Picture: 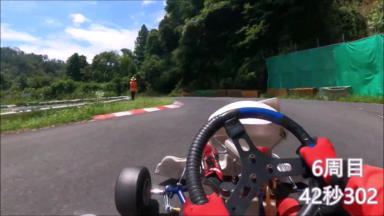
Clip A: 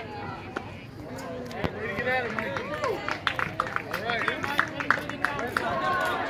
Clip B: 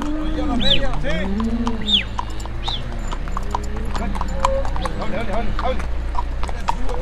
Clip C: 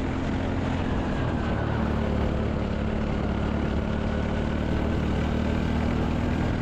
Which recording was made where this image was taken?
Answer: C